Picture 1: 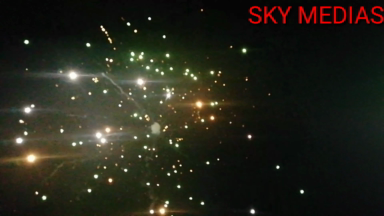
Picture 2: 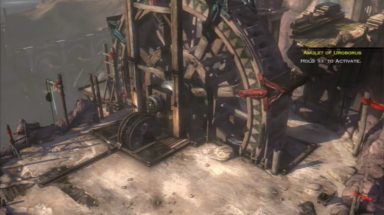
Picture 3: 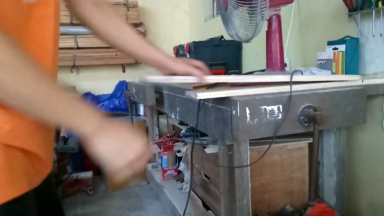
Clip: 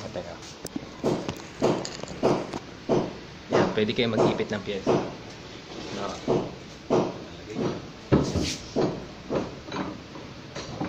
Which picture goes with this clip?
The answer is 3